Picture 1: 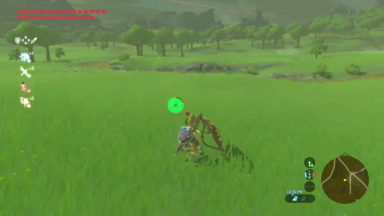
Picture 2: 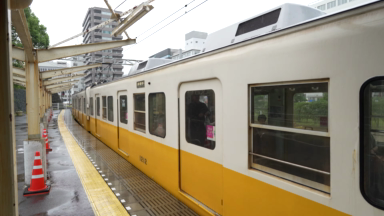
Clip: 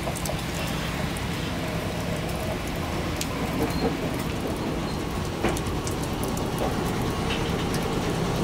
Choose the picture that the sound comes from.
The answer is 2